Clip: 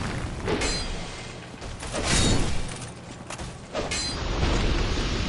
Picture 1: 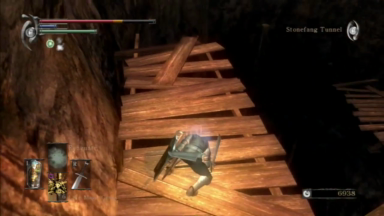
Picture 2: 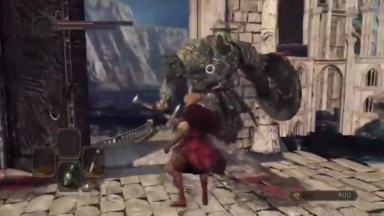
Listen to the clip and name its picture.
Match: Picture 2